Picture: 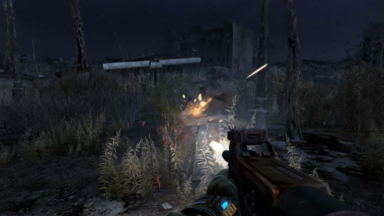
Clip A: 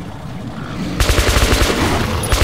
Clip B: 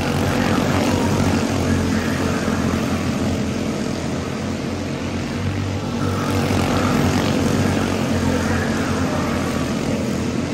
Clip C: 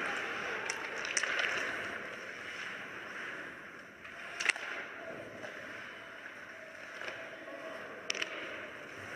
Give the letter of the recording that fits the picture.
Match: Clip A